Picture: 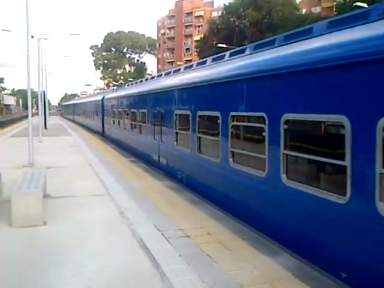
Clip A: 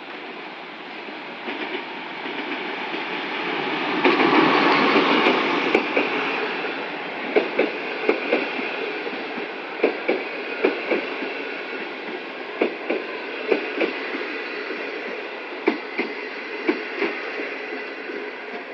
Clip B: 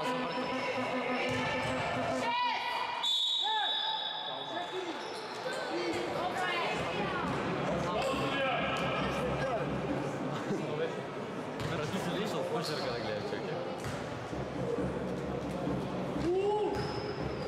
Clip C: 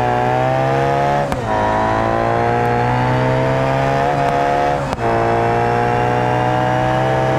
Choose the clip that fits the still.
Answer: A